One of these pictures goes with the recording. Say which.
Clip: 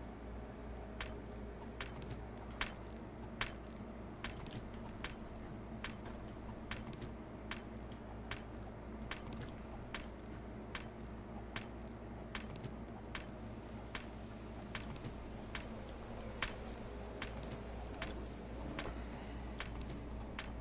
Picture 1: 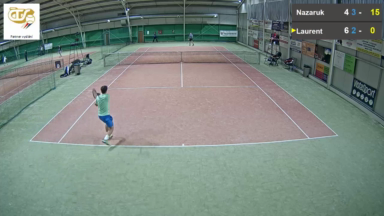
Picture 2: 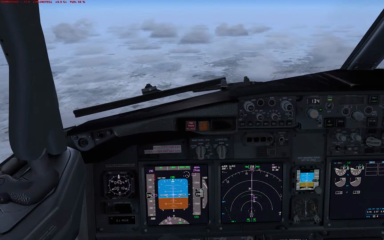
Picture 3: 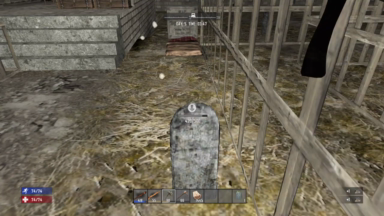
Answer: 3